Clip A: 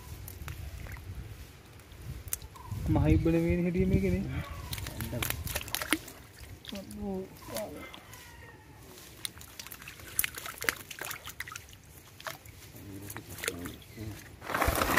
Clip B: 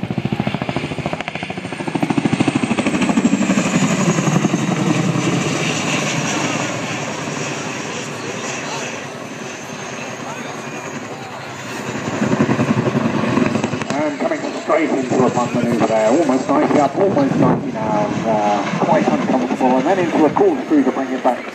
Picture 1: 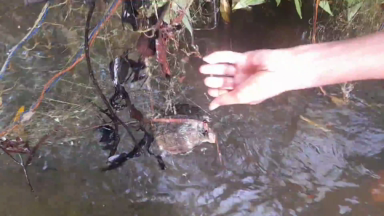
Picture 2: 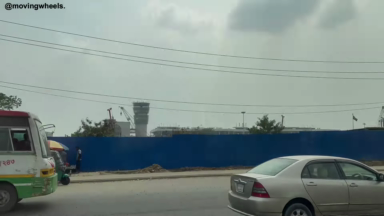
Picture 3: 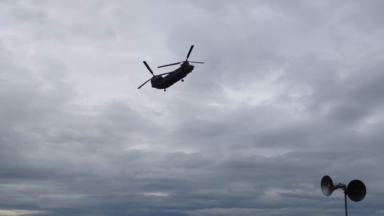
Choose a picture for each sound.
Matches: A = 1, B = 3